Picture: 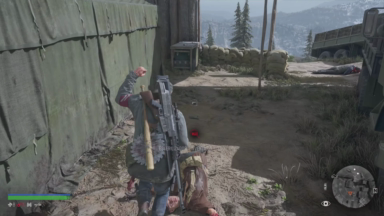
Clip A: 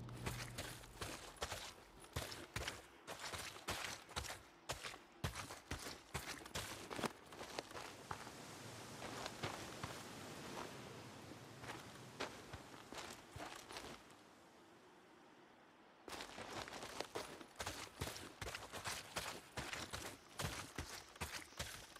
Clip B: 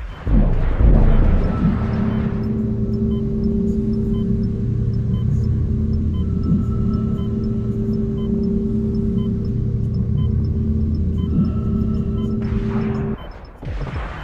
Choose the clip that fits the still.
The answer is A